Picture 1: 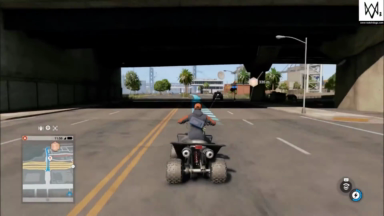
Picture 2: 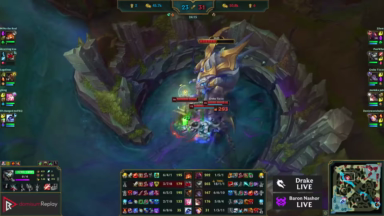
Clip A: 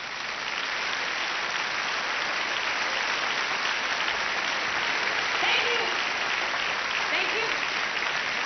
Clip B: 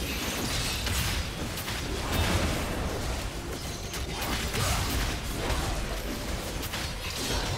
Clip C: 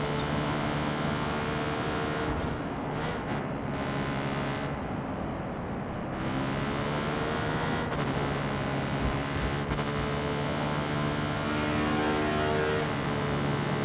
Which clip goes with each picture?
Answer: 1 C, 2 B